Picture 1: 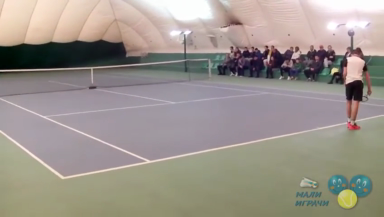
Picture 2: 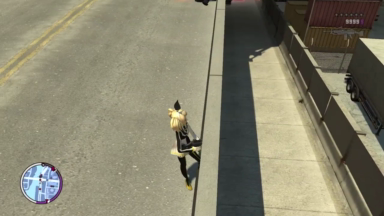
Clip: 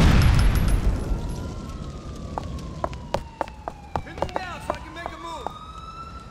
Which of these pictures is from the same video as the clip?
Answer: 2